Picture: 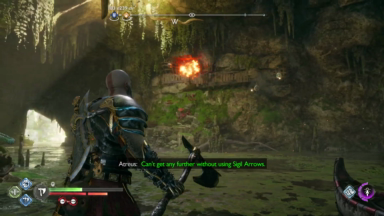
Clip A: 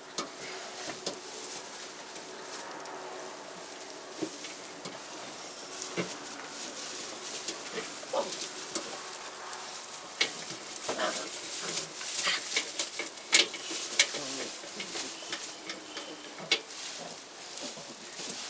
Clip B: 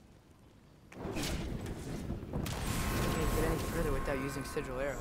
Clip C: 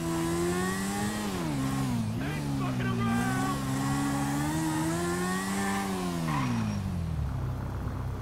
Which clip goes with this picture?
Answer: B